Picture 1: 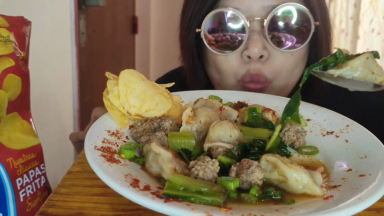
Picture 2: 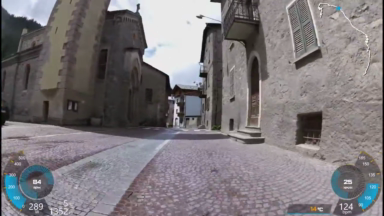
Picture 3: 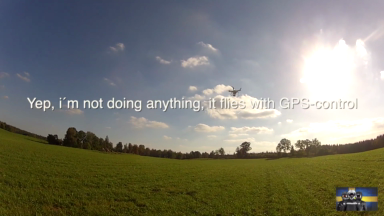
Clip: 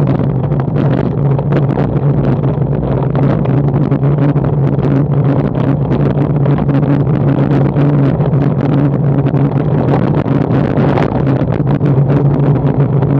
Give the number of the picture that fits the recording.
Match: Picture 2